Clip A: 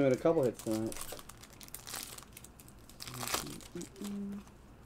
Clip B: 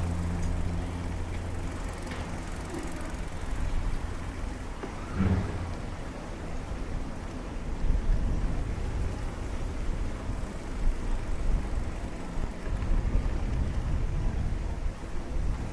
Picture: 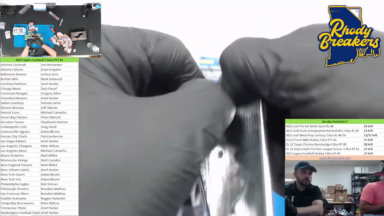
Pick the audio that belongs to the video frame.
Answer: A